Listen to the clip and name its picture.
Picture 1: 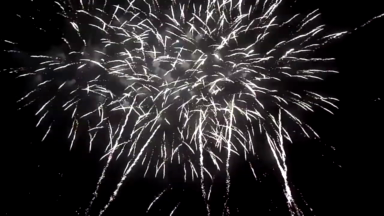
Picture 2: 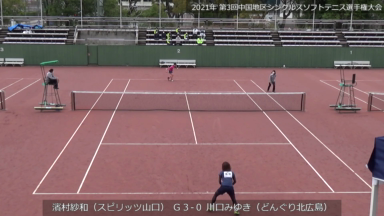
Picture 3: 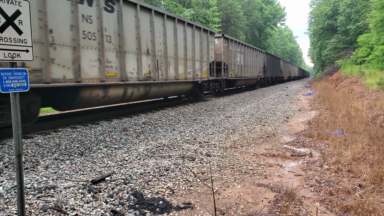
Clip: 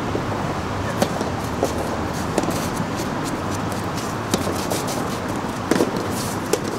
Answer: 2